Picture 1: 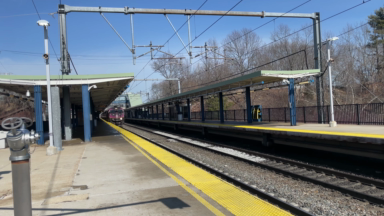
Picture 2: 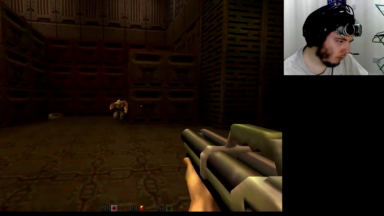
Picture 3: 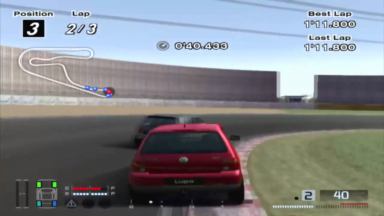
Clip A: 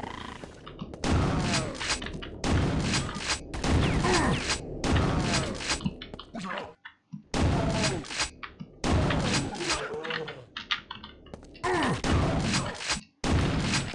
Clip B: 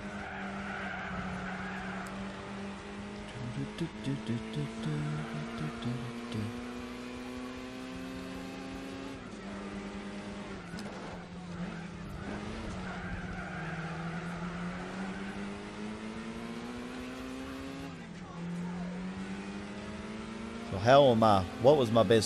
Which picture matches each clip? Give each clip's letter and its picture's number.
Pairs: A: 2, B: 3